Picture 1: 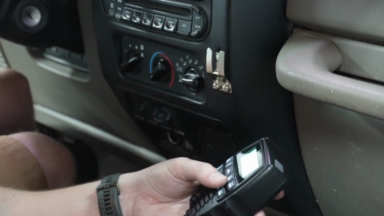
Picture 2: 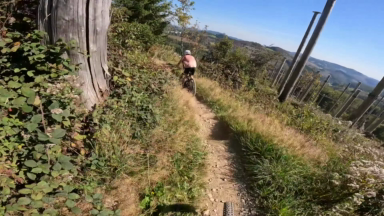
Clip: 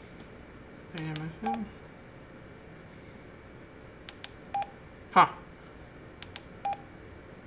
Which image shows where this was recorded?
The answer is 1